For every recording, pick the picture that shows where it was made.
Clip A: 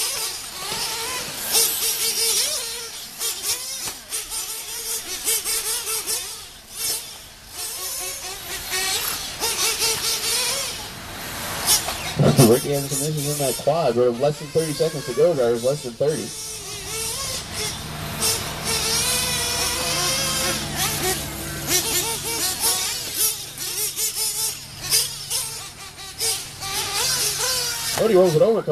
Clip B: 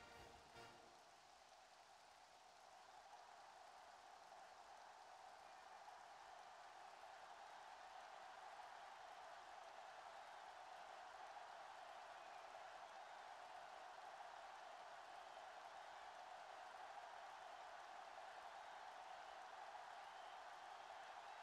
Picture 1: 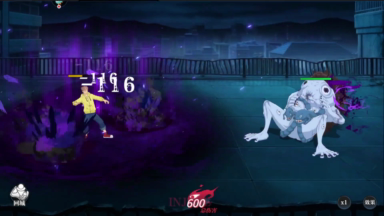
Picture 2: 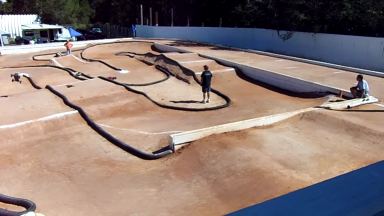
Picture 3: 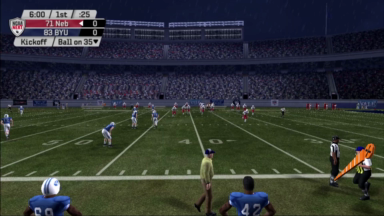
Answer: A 2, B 3